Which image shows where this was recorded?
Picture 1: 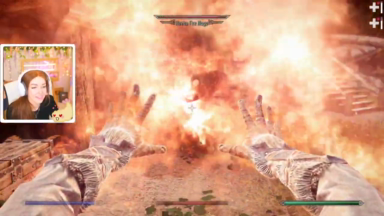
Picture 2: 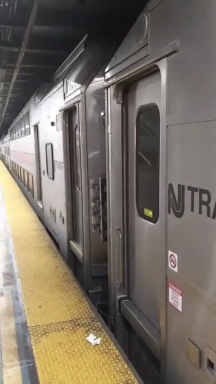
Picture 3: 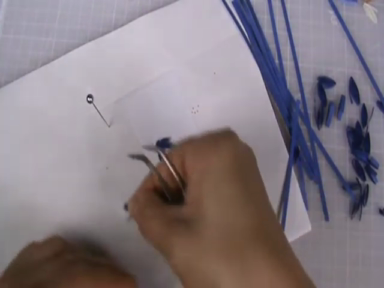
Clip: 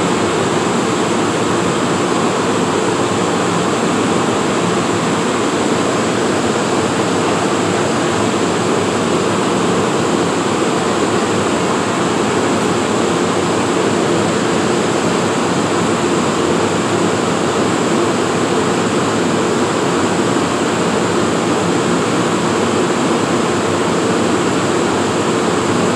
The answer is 2